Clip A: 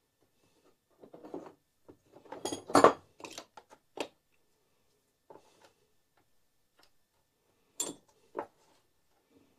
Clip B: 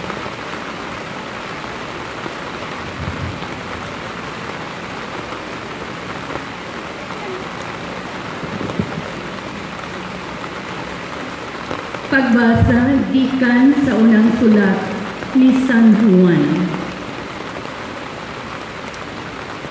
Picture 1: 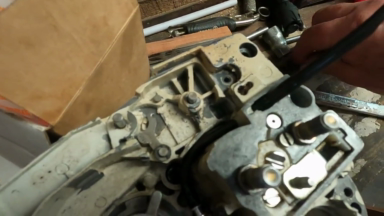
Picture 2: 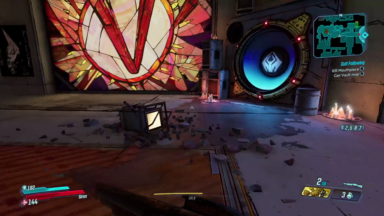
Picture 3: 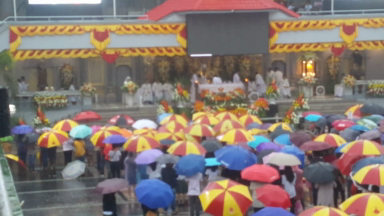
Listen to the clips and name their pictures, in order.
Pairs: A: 1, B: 3